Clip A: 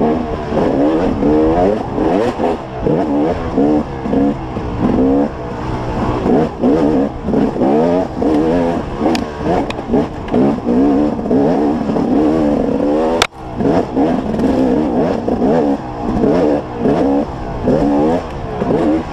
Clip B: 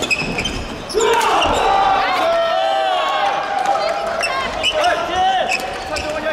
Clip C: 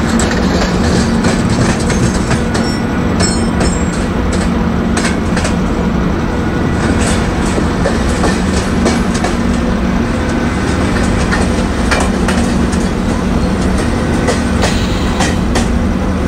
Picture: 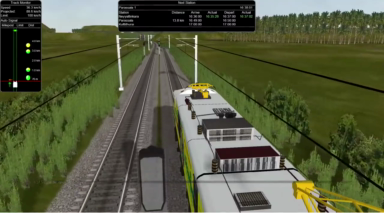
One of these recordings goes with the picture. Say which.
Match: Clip C